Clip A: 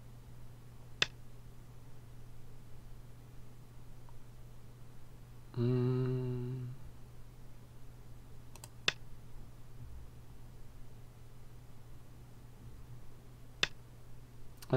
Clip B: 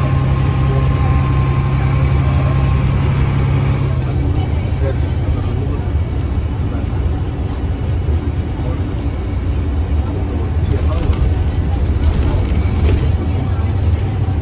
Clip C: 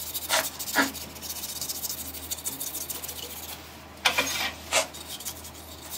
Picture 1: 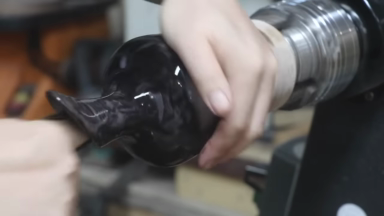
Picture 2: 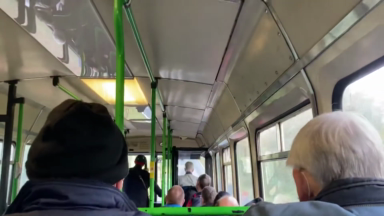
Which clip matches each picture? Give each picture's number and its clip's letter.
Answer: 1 C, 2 B